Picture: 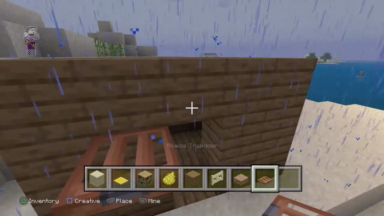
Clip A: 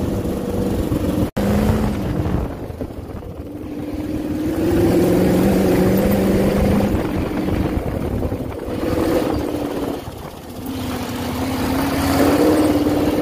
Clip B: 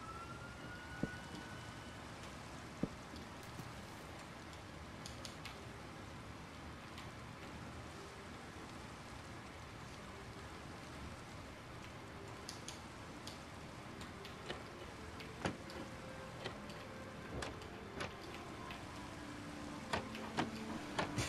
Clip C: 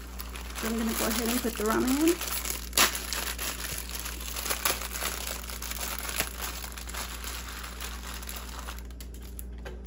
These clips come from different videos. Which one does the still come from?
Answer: B